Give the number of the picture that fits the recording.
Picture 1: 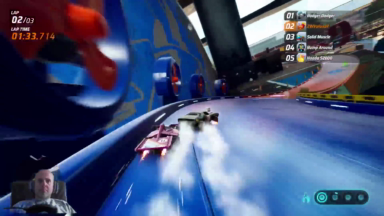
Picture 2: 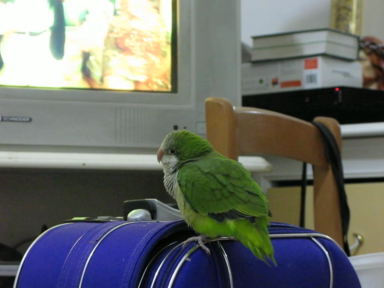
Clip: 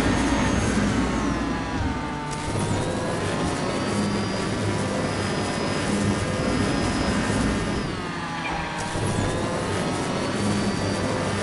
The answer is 1